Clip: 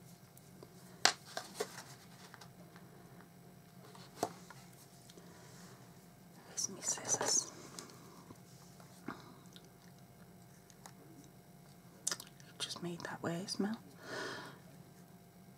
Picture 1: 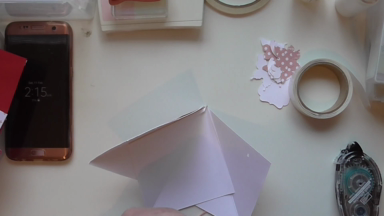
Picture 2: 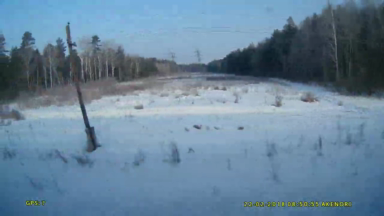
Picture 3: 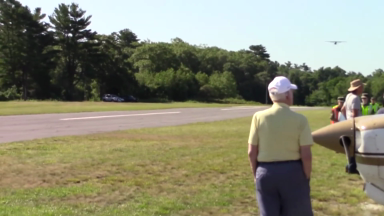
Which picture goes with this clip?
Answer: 1